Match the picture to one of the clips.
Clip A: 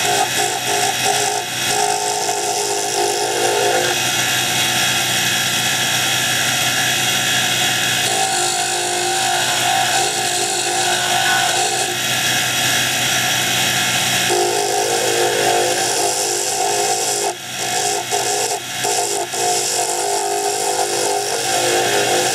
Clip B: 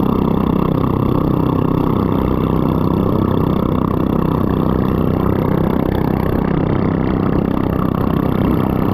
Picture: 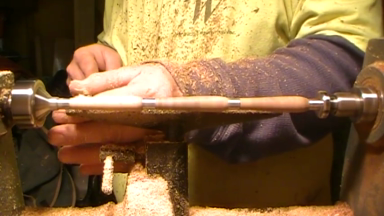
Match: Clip A